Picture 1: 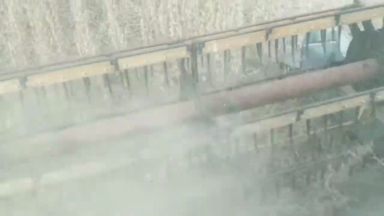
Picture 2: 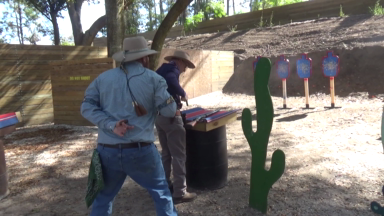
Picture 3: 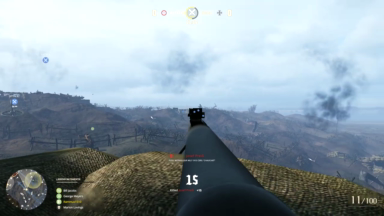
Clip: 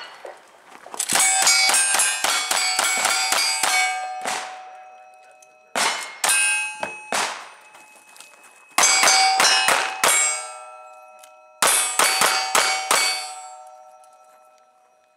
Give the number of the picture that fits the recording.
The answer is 2